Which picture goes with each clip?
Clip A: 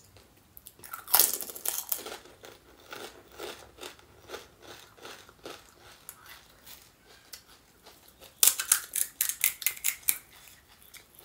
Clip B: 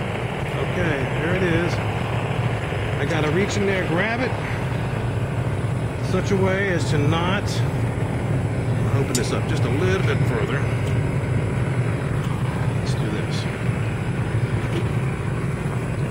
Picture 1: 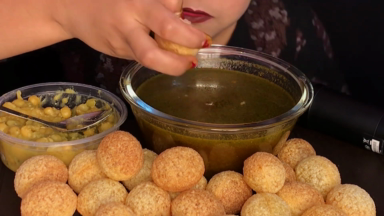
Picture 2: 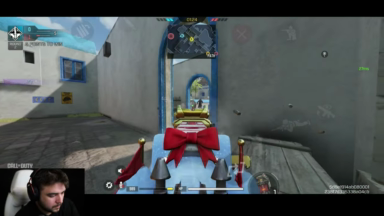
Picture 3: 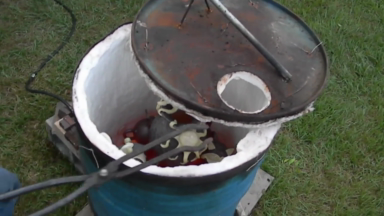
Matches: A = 1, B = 3